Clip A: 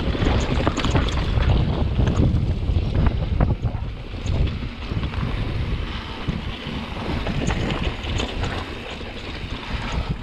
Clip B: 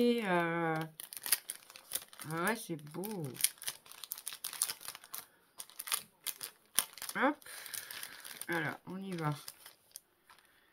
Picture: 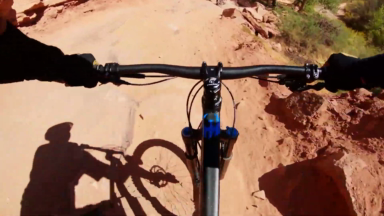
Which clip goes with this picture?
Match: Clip A